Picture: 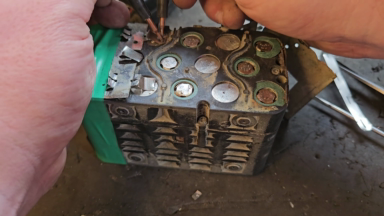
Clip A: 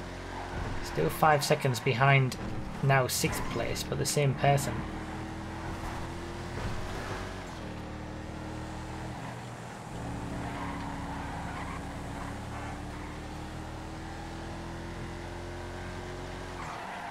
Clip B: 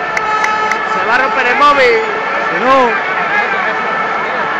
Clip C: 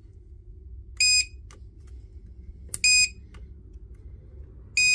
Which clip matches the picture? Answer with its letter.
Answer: C